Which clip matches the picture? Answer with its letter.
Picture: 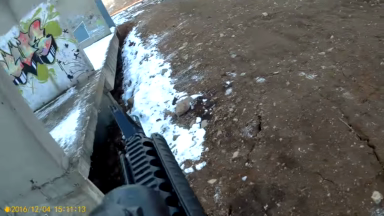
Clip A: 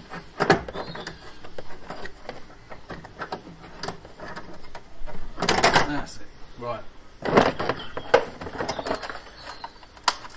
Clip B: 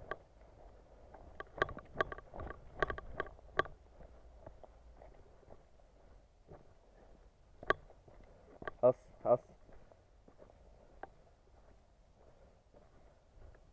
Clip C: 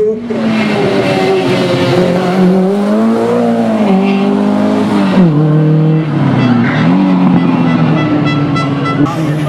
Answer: B